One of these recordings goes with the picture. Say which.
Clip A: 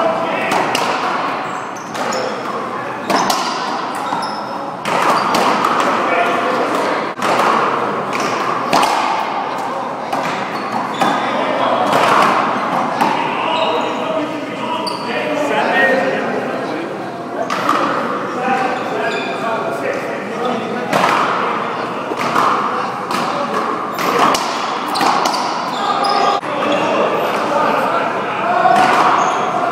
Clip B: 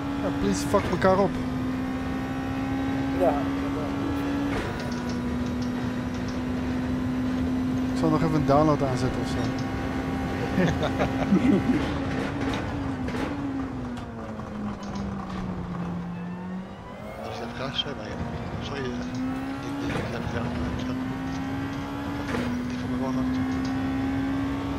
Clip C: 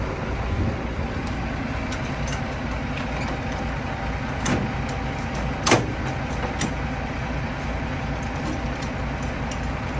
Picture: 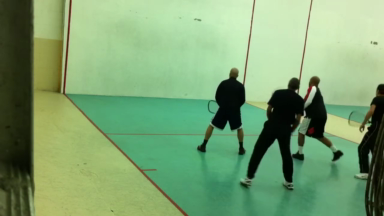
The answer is A